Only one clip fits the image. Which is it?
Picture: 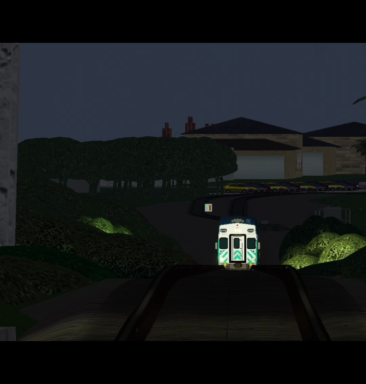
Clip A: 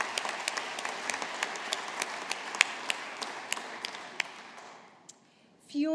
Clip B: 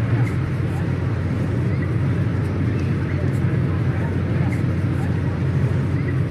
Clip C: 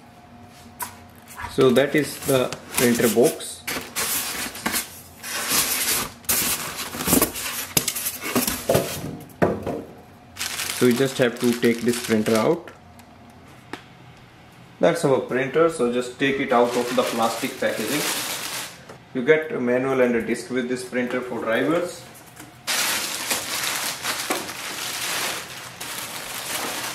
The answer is B